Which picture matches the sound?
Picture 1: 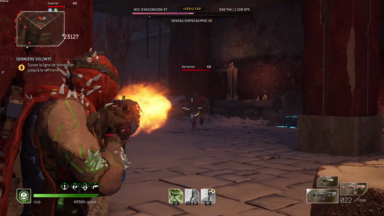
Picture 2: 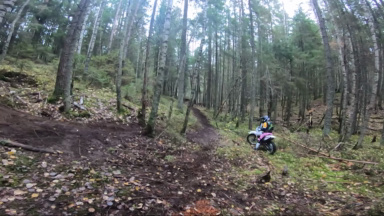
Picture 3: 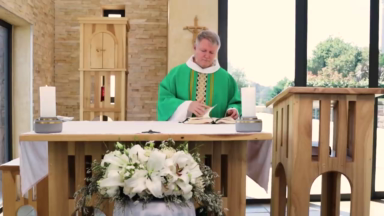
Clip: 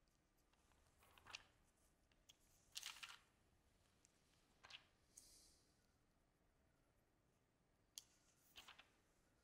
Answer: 3